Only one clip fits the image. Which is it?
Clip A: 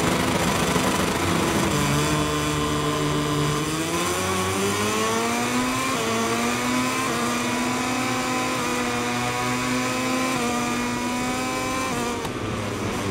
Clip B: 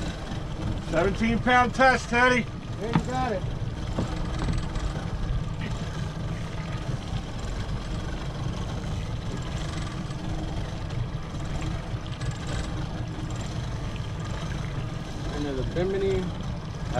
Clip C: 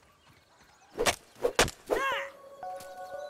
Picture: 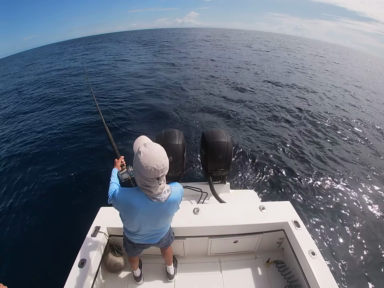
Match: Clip B